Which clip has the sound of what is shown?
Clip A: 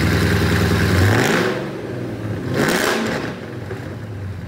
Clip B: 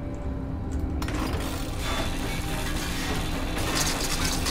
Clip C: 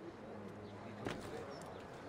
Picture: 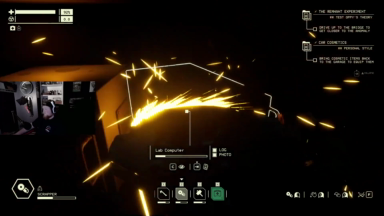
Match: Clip B